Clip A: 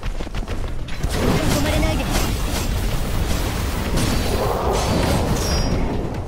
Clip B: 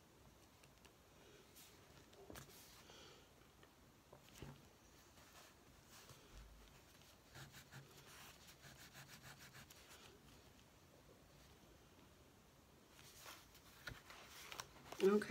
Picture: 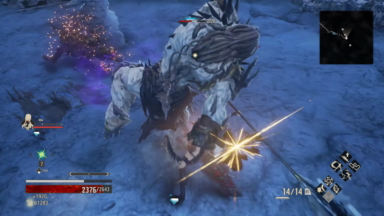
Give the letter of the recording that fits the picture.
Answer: A